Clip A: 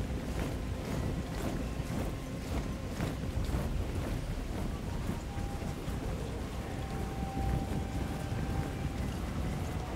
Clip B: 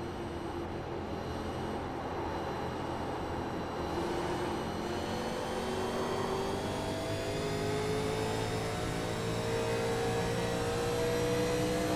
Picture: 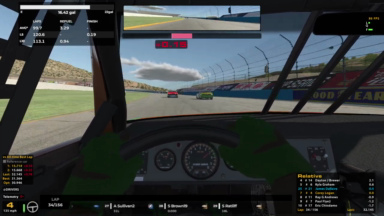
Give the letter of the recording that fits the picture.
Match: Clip B